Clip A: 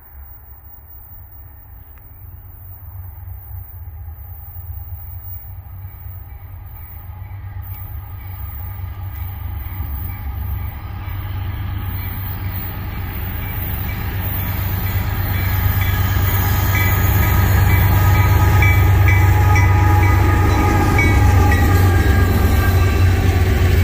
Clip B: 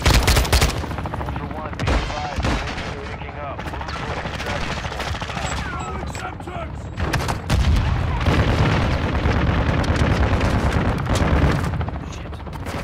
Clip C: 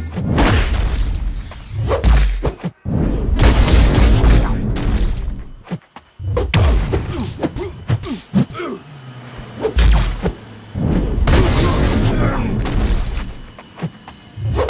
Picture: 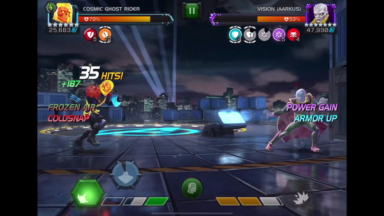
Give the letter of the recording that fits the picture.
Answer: C